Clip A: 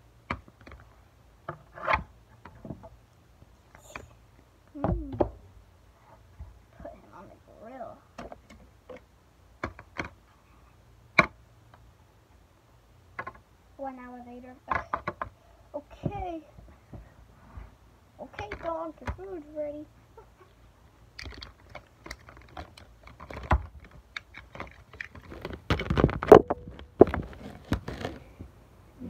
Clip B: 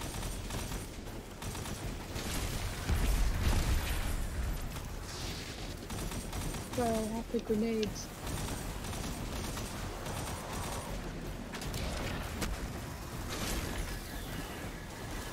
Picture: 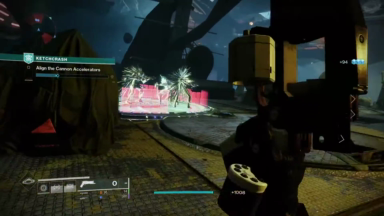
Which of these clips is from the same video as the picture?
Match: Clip B